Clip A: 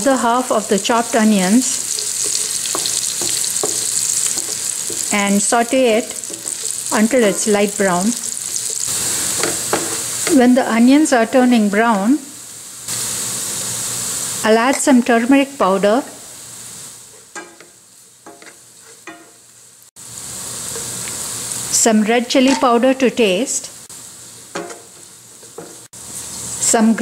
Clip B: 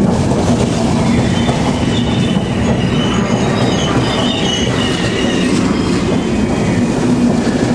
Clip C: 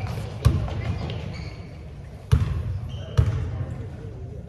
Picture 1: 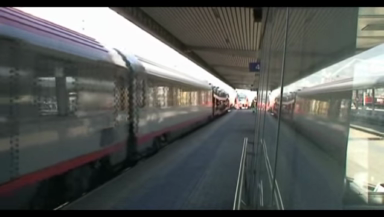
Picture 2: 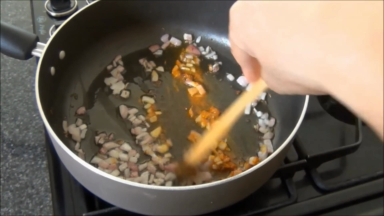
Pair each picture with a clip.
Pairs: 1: B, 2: A